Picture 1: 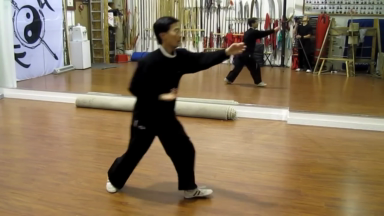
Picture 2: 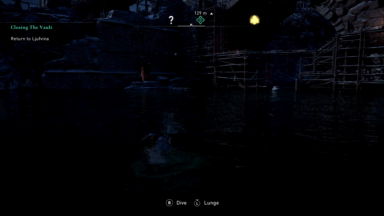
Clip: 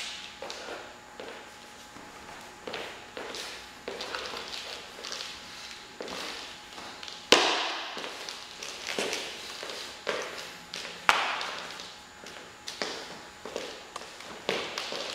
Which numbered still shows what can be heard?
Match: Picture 1